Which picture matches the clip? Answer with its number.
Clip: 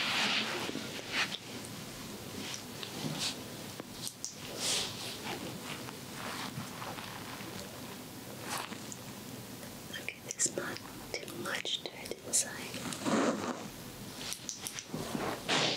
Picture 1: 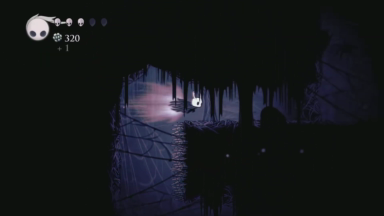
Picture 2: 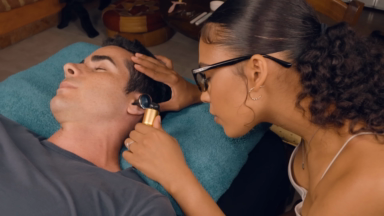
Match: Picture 2